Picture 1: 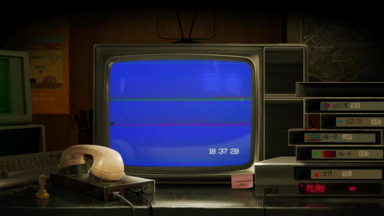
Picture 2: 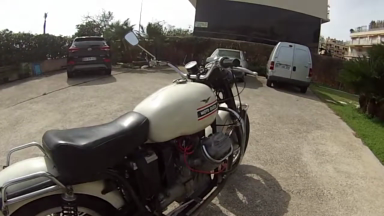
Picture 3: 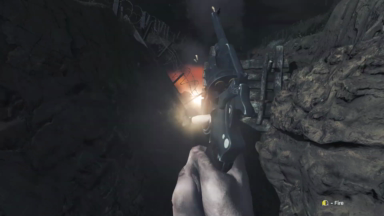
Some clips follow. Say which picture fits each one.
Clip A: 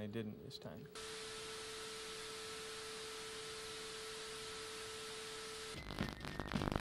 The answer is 1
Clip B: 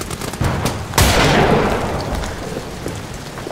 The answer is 3